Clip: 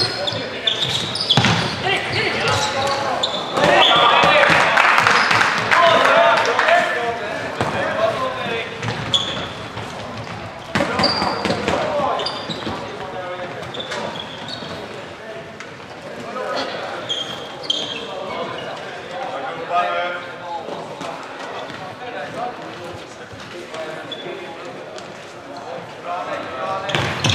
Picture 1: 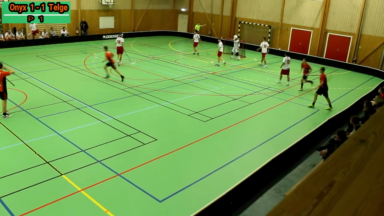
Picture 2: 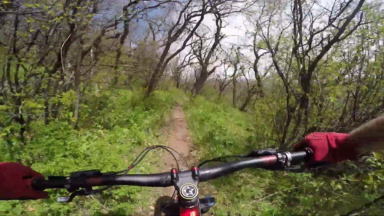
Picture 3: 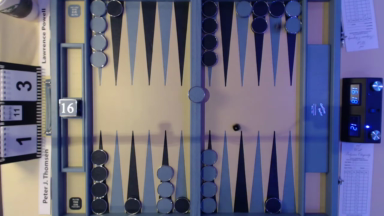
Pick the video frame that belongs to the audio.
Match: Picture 1